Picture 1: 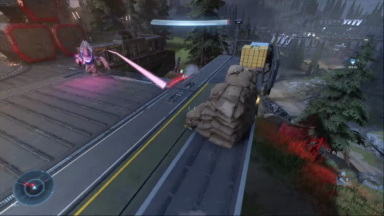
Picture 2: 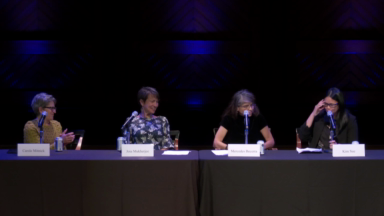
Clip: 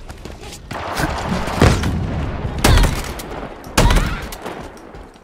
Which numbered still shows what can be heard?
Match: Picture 1